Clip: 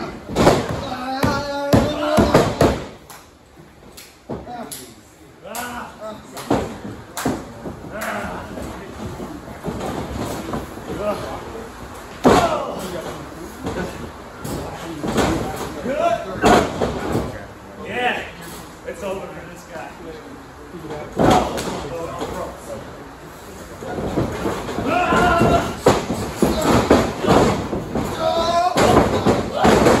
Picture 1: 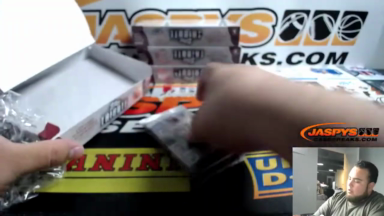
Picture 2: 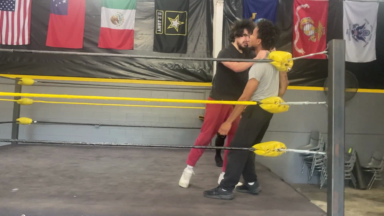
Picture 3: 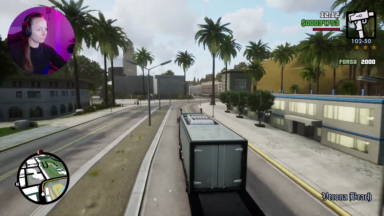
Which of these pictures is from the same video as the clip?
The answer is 2